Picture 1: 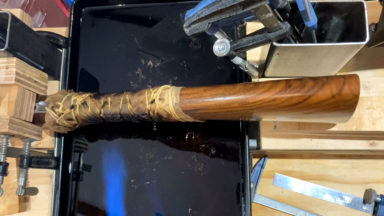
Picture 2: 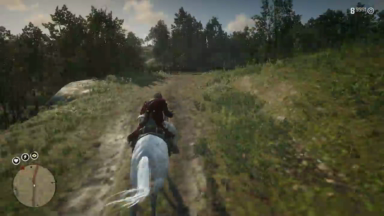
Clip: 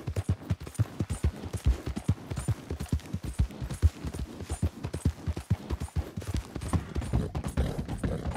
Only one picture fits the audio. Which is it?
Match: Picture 2